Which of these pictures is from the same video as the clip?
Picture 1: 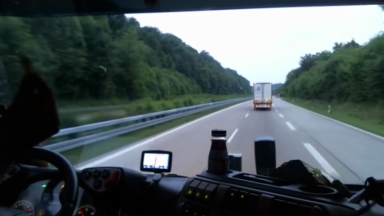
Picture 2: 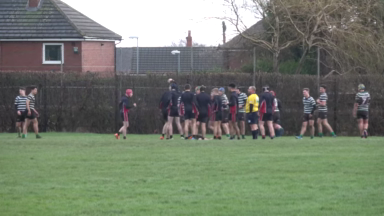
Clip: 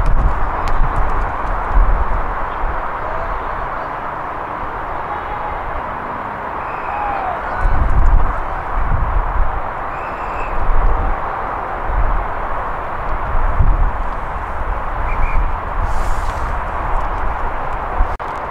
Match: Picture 2